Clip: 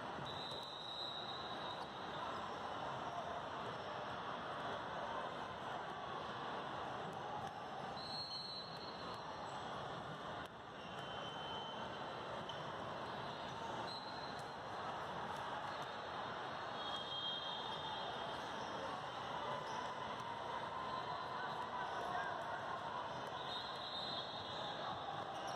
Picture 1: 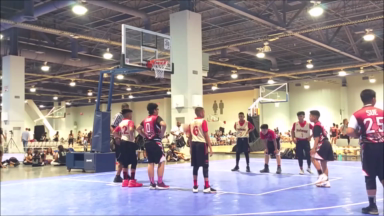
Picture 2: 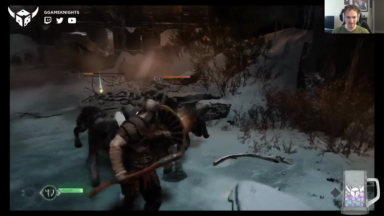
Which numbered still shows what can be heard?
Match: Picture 1